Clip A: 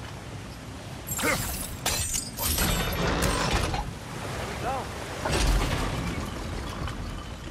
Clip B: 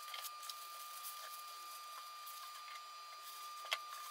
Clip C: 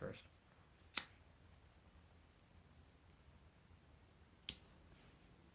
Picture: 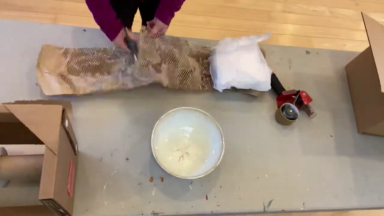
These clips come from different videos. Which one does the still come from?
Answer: B